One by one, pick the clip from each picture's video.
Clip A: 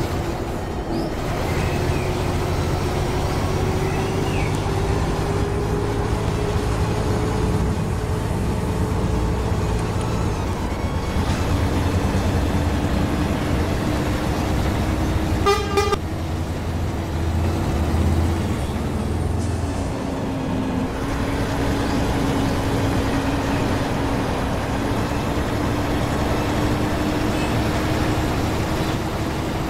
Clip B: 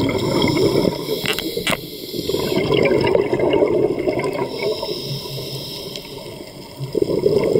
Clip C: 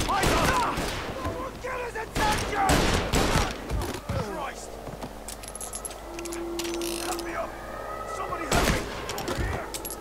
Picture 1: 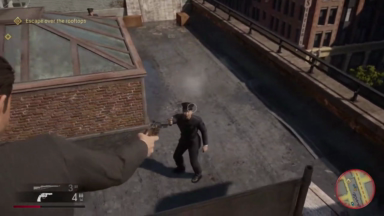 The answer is C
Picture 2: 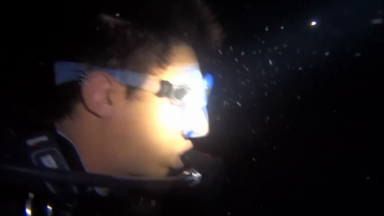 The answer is B